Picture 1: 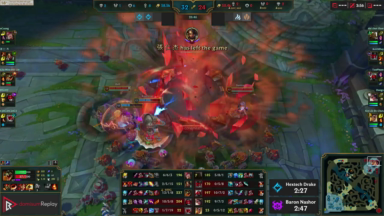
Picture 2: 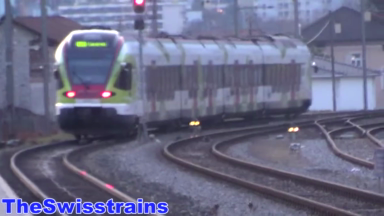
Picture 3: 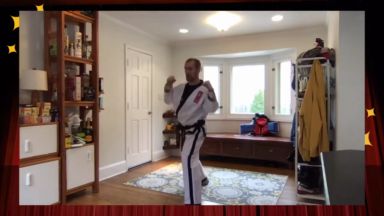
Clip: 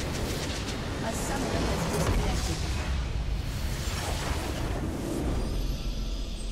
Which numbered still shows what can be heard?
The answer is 1